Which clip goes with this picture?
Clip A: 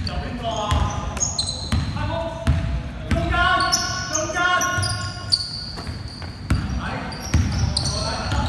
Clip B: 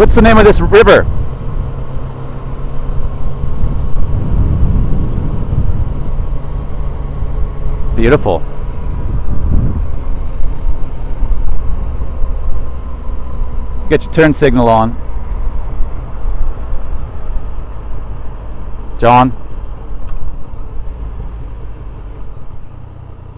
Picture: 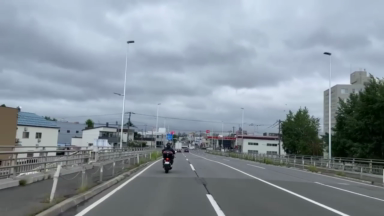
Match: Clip B